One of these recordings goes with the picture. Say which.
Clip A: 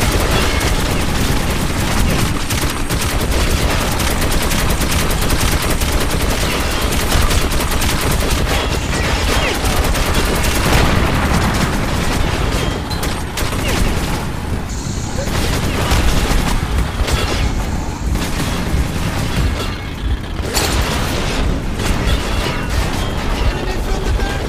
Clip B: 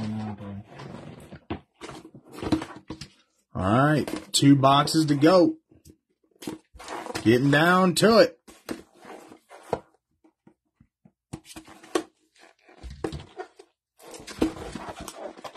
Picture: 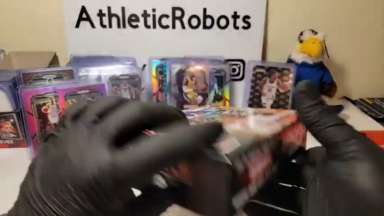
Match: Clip B